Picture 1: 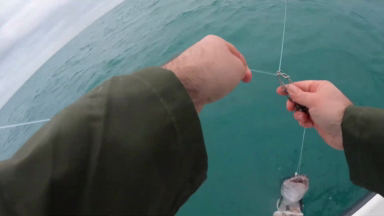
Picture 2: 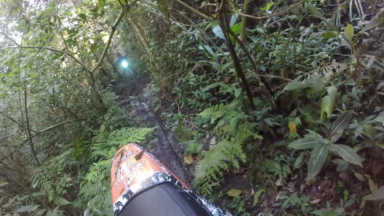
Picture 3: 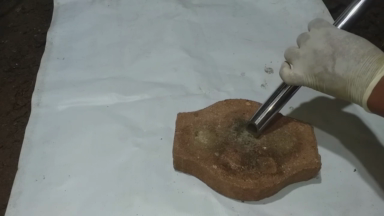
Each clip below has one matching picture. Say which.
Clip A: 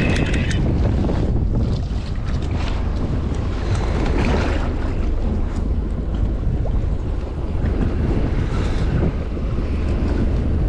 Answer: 1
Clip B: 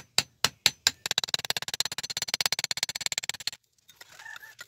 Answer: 3